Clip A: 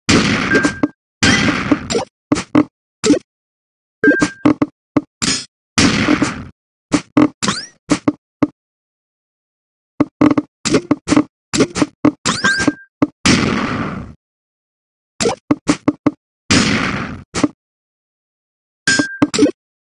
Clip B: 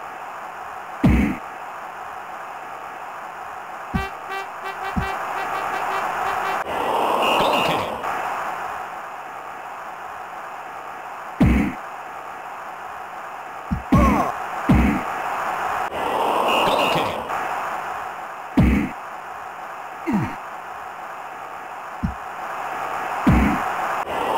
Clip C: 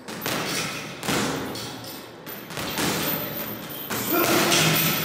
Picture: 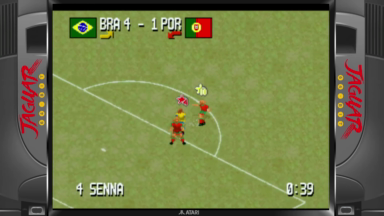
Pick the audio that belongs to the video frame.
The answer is B